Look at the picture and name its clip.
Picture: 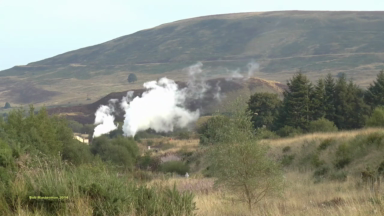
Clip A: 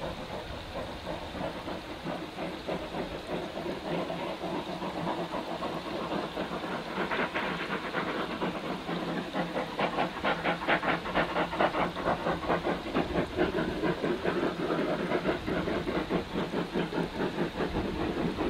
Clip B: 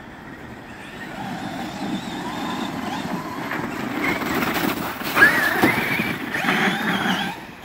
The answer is A